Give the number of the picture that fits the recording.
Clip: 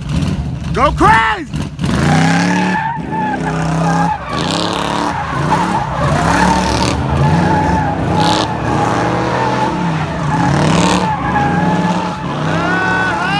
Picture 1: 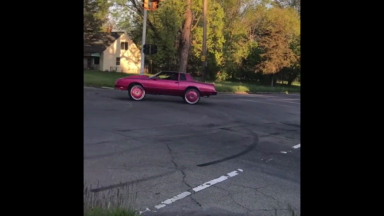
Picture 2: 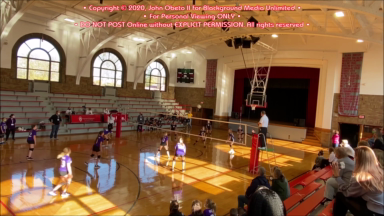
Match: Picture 1